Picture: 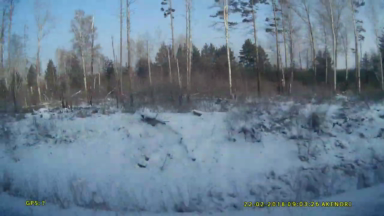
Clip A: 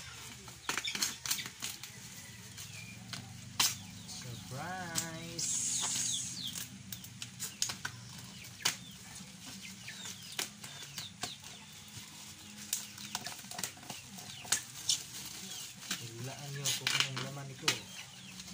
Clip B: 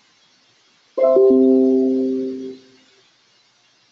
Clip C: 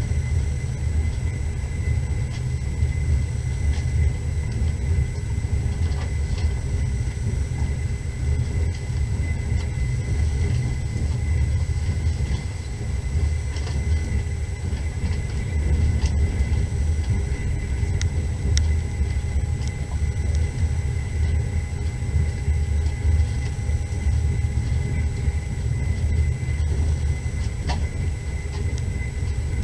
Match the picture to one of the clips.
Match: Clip C